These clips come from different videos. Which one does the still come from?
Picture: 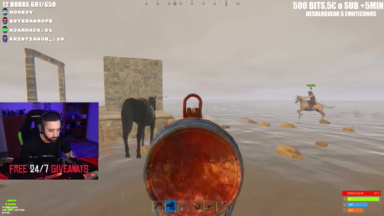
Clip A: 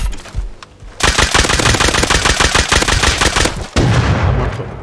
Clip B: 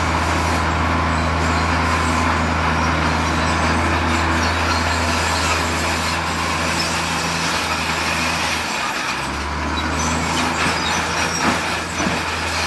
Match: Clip A